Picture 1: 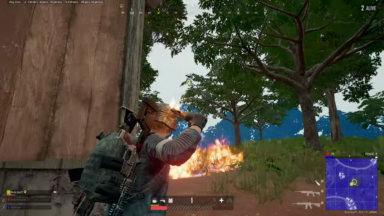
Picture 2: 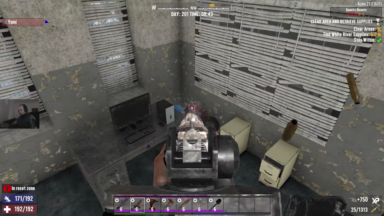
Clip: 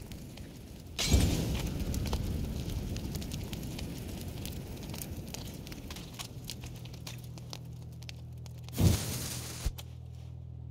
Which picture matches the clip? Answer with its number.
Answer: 1